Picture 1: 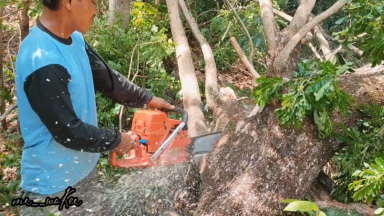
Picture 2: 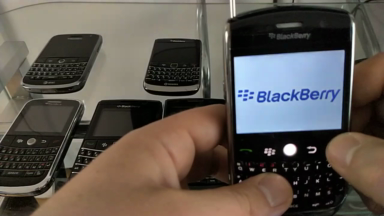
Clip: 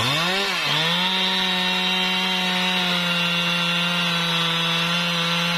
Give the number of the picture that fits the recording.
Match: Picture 1